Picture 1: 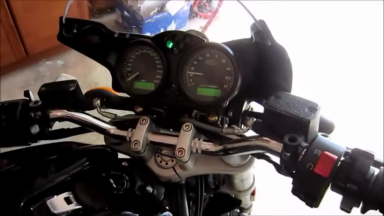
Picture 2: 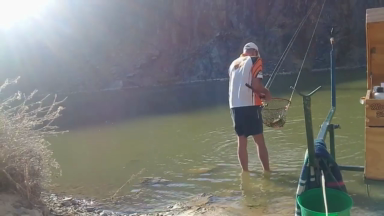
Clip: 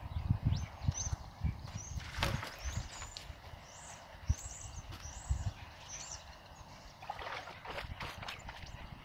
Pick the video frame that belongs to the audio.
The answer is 2